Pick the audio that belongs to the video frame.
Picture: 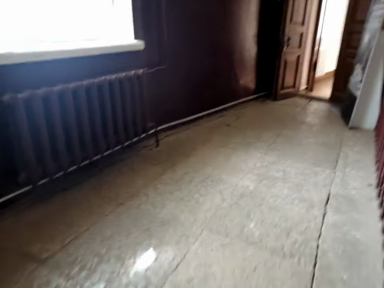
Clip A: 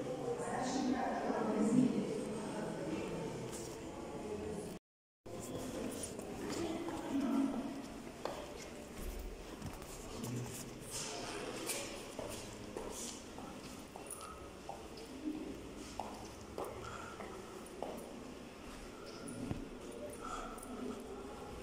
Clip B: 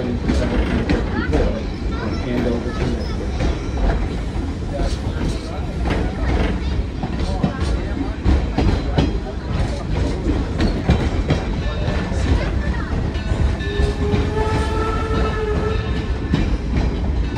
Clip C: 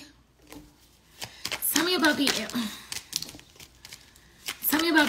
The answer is A